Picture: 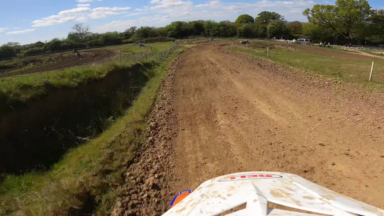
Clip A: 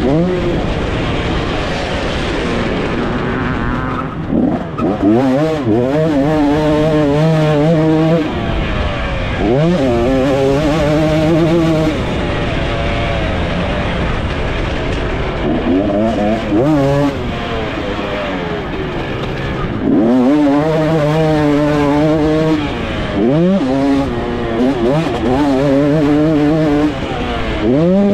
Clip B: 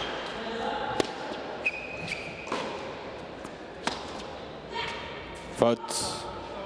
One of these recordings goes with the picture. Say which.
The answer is A